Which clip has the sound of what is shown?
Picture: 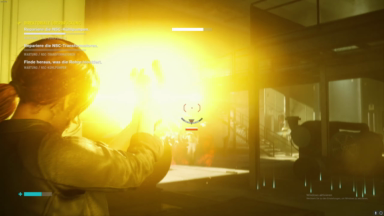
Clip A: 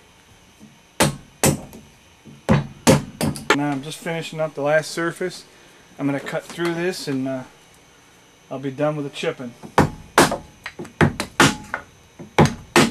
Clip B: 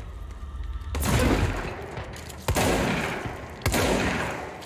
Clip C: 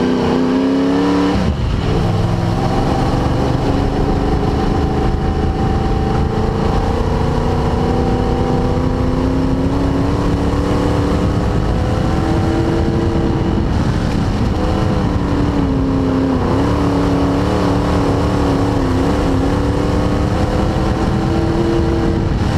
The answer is B